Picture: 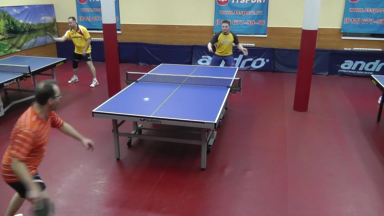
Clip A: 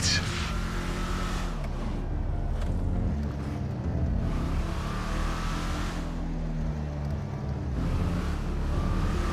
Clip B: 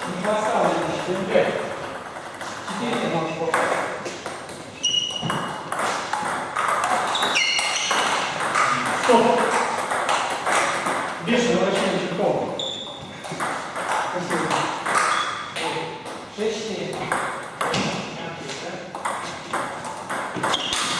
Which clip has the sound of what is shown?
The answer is B